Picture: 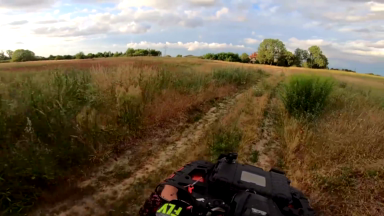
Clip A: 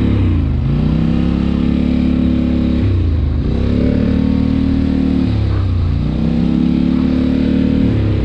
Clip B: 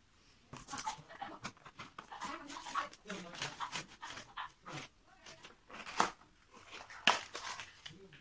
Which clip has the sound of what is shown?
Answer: A